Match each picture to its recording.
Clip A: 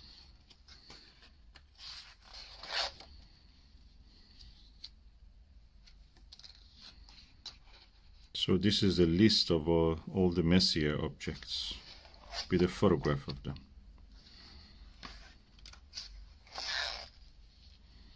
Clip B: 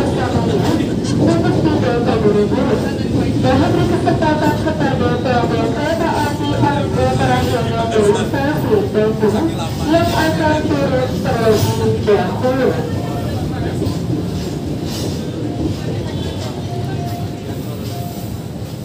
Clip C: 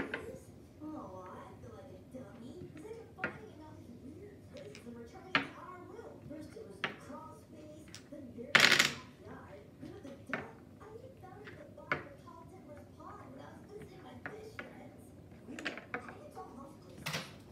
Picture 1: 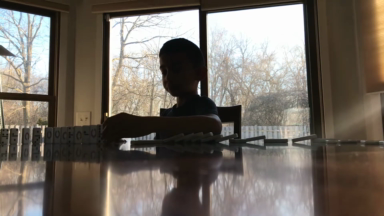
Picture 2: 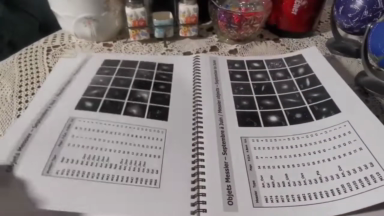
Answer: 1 C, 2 A